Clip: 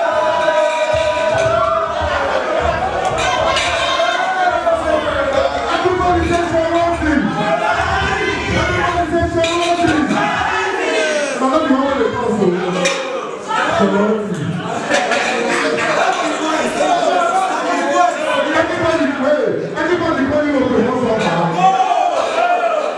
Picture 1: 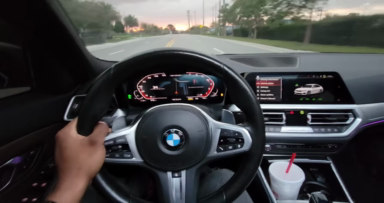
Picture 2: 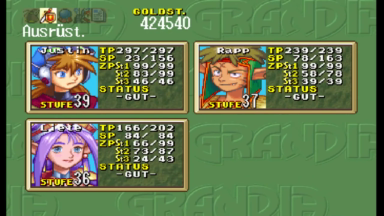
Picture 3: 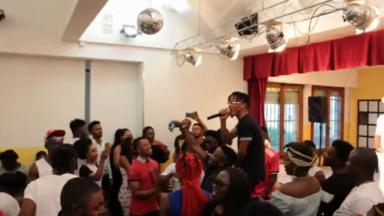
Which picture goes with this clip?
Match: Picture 3